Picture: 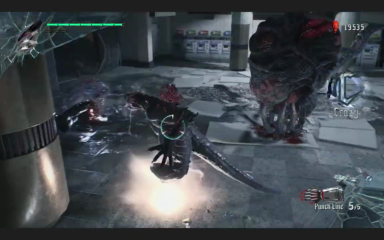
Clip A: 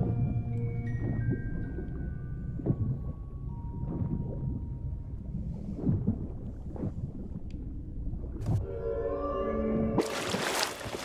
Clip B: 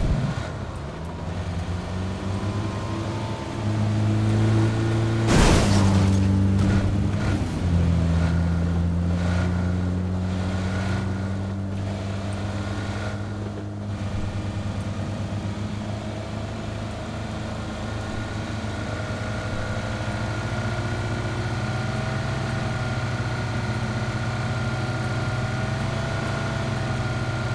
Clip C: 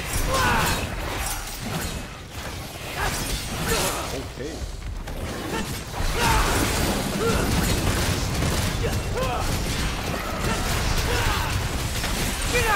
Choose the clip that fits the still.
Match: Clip C